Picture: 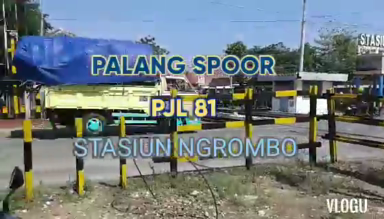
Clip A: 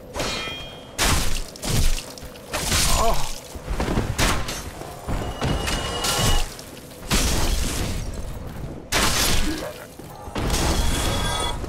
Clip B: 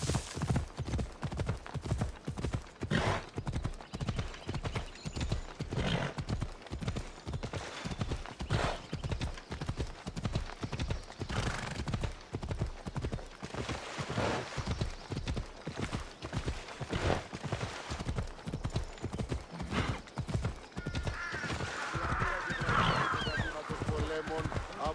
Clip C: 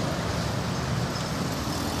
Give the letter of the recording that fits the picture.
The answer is C